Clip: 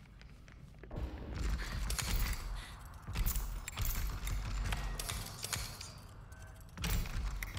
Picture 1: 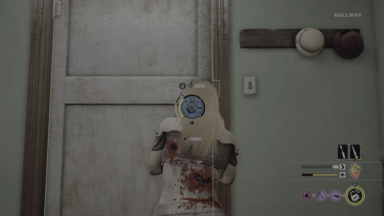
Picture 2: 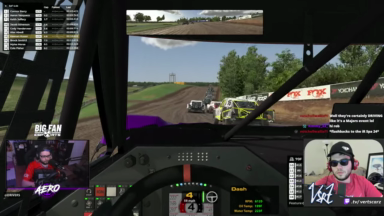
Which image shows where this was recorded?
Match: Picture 1